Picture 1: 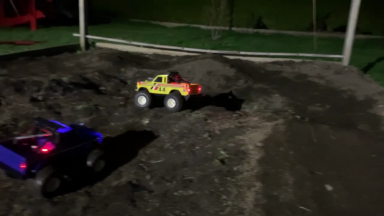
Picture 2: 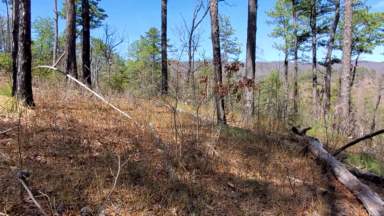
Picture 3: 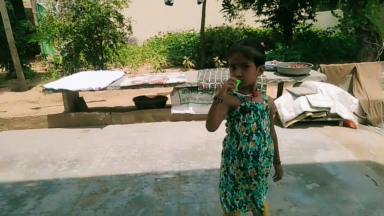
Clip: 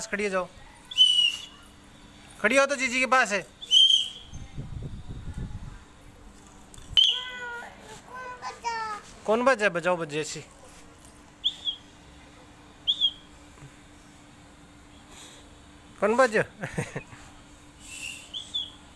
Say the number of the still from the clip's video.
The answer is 3